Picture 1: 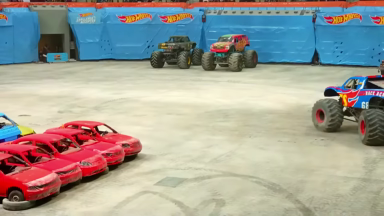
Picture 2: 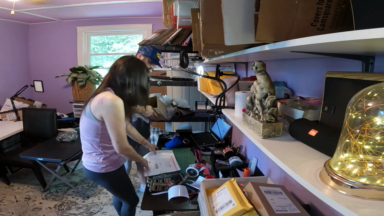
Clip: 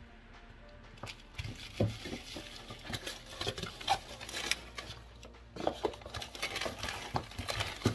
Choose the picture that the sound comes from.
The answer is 2